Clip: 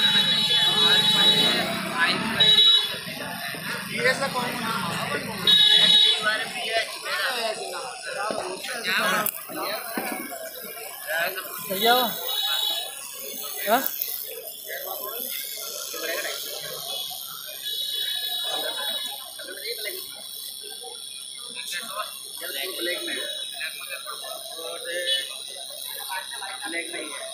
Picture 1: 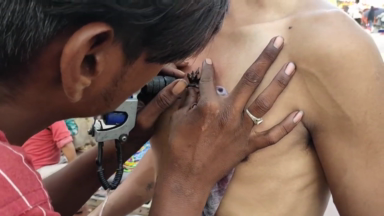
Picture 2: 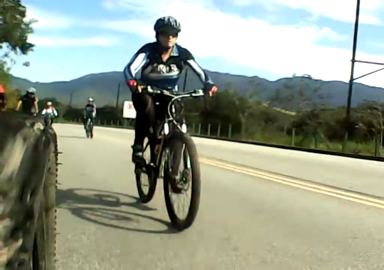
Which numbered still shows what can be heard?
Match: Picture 1